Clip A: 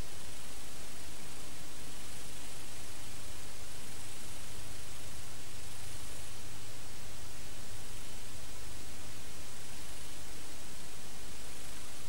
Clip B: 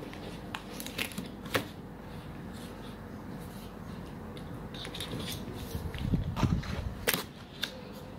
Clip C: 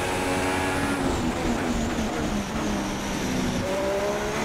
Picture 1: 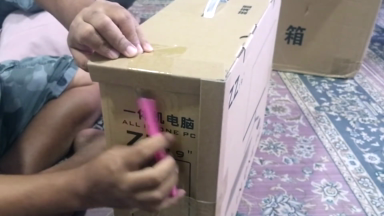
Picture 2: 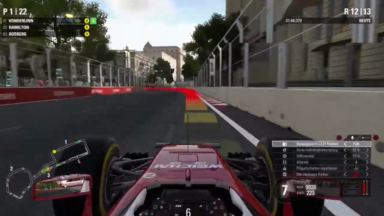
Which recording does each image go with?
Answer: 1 B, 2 C